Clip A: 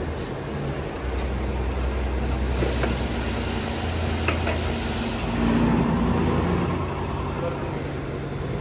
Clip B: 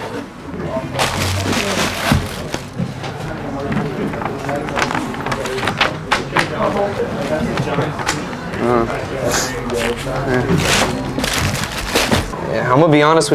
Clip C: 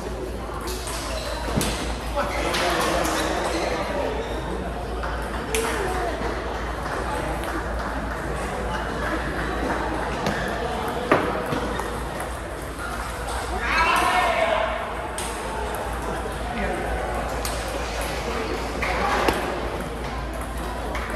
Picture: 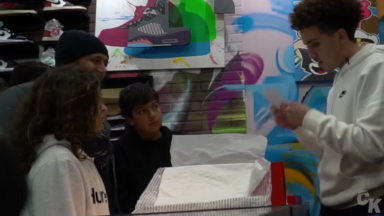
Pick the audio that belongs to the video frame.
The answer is B